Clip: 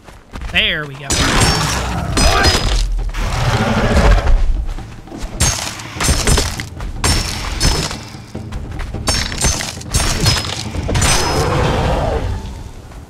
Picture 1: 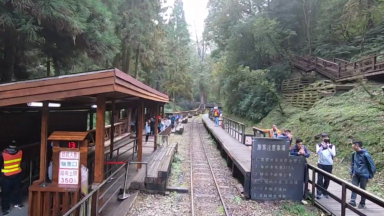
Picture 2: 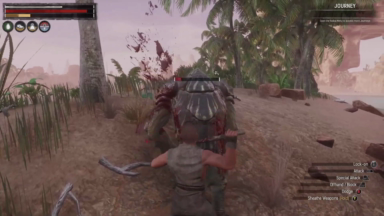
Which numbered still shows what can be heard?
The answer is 2